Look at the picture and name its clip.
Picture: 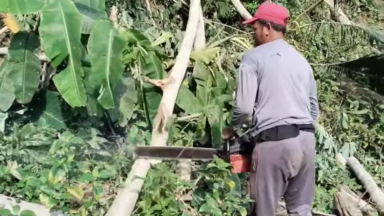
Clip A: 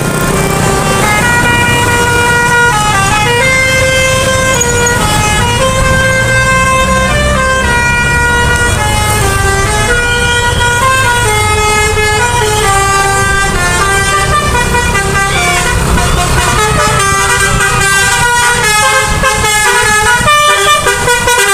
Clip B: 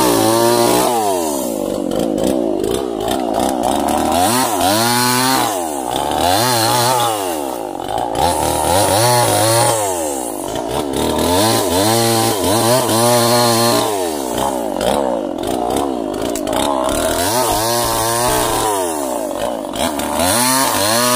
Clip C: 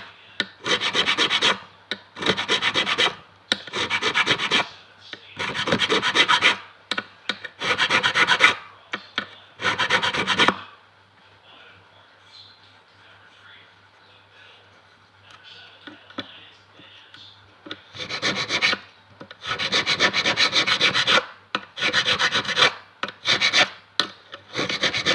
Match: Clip B